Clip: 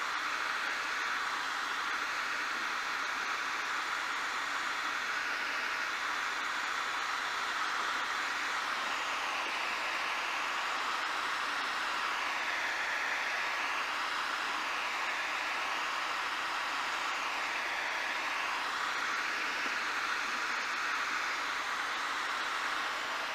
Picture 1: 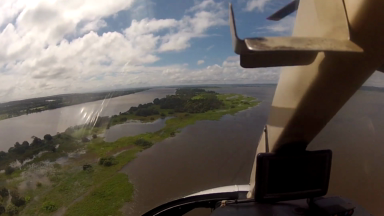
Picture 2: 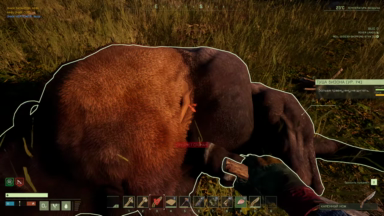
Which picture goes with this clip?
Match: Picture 1